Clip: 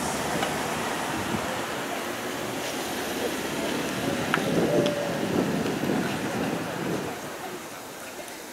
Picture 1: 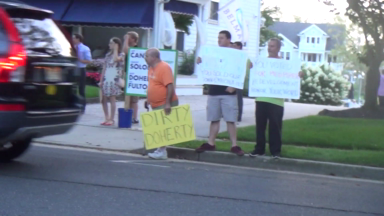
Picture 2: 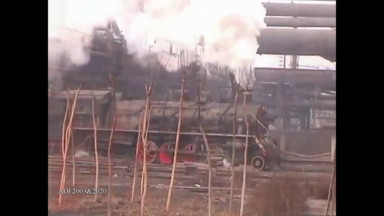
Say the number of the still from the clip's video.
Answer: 1